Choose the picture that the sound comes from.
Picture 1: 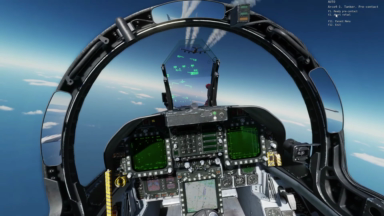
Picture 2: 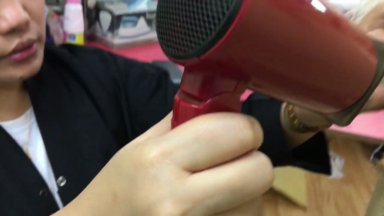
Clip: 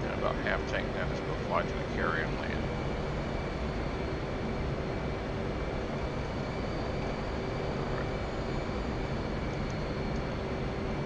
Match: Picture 1